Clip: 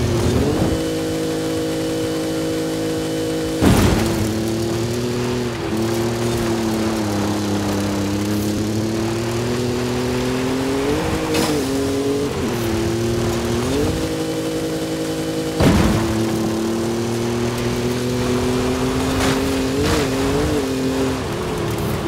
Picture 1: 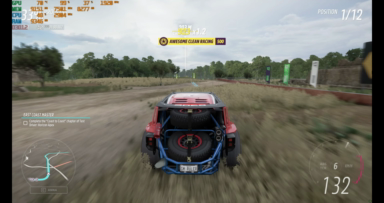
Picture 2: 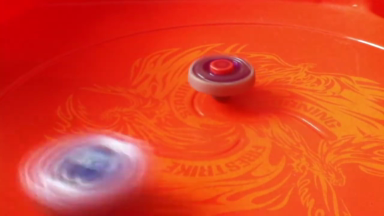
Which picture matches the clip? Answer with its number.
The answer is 1